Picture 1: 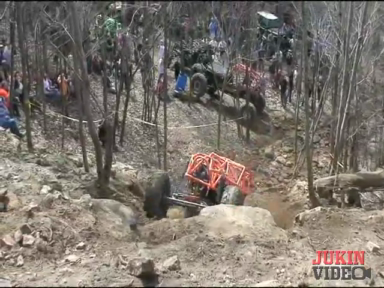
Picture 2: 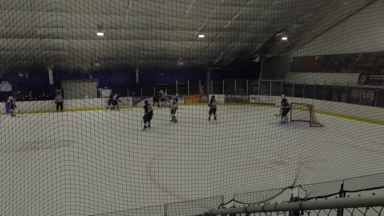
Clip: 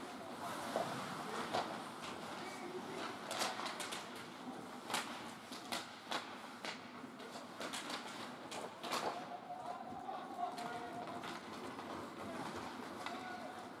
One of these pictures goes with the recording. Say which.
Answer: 2